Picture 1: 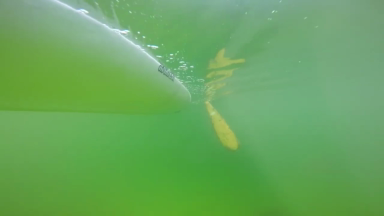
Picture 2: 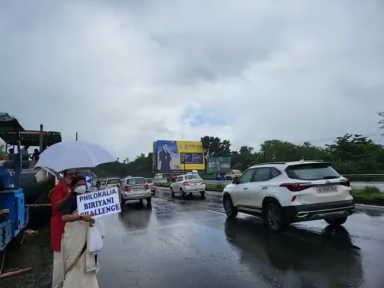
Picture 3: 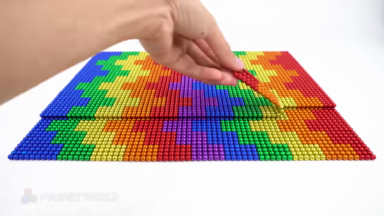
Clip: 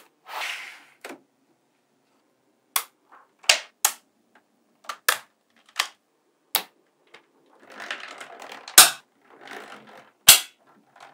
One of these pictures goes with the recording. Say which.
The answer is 3